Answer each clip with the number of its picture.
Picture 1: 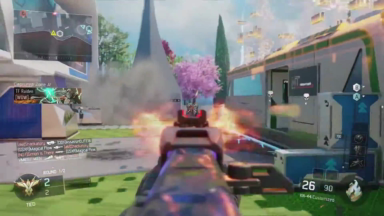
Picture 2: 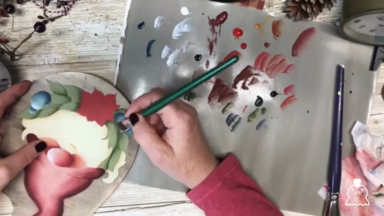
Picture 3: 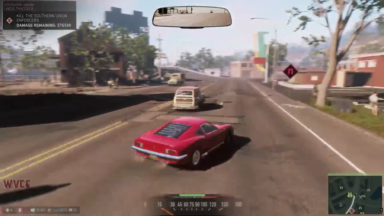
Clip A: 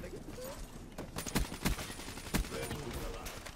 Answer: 1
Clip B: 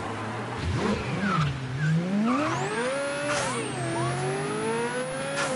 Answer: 3